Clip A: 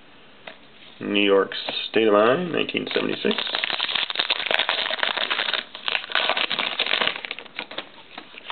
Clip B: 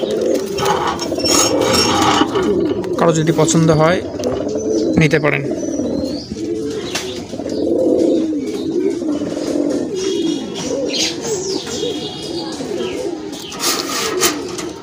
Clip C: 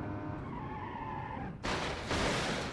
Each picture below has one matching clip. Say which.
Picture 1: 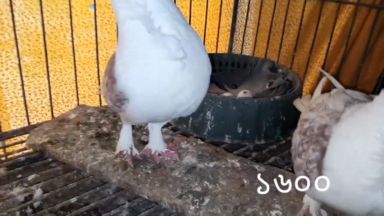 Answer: B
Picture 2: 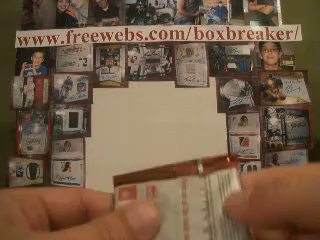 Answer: A